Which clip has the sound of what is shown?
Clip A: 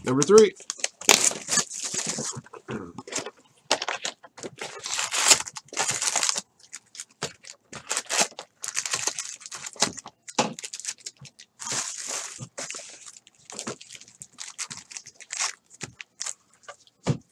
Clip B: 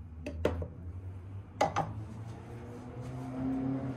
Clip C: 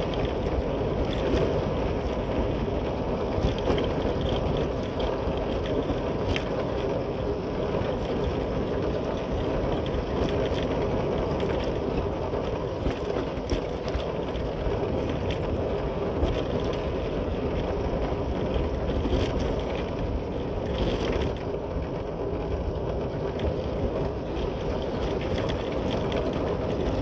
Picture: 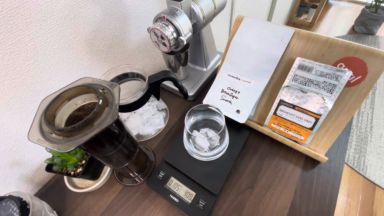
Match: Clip B